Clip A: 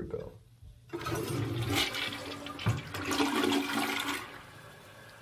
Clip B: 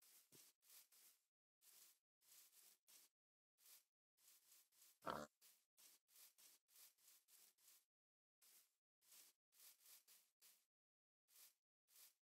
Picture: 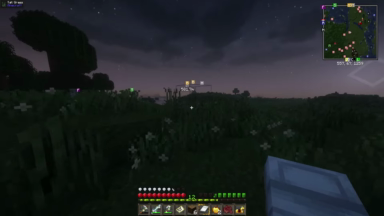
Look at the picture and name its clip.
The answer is B